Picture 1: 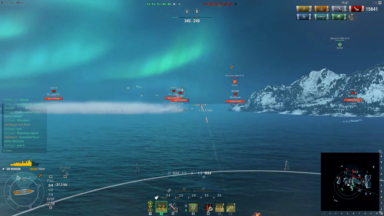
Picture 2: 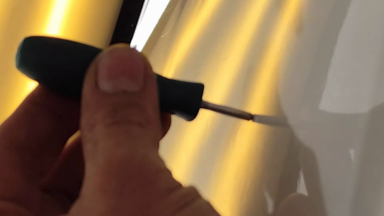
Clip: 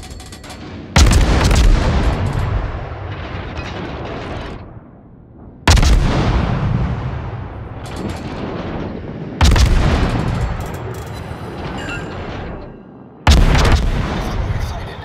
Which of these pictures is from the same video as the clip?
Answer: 1